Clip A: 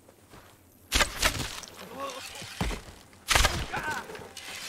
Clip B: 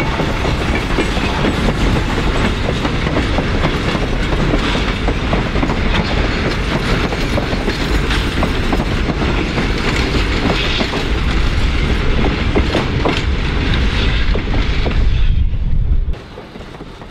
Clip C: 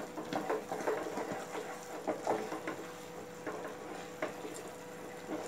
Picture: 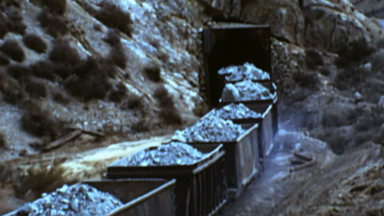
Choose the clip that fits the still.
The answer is B